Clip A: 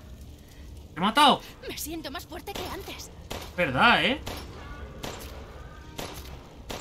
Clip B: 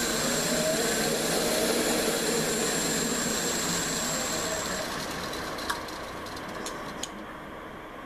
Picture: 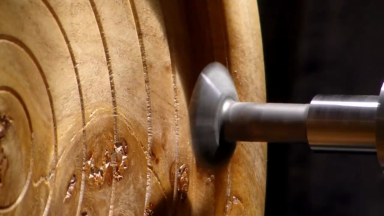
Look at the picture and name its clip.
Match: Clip B